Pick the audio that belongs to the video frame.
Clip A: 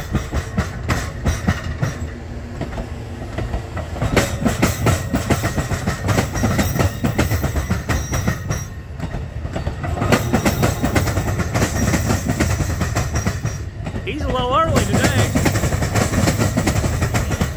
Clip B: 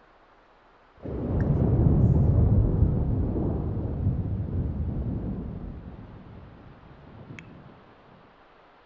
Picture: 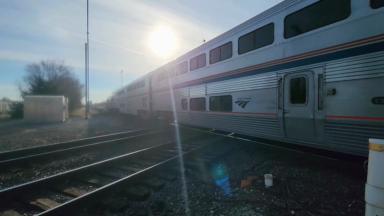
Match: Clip A